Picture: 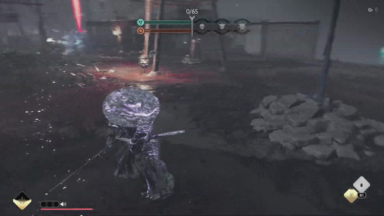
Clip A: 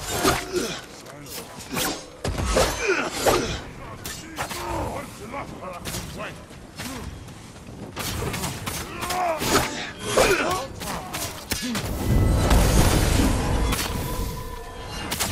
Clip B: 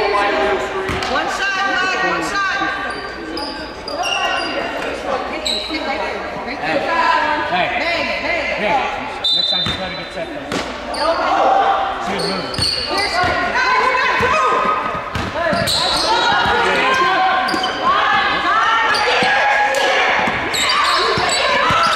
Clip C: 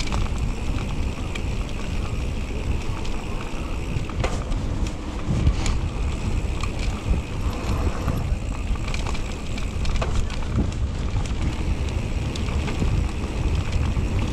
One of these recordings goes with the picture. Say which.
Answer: A